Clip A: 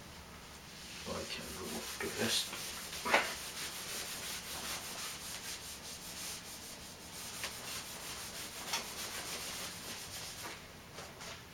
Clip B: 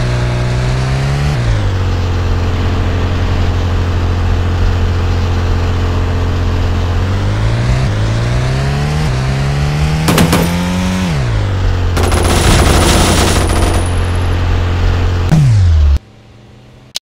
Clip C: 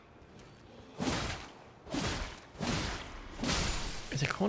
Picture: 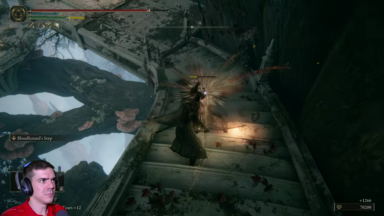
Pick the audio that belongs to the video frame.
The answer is C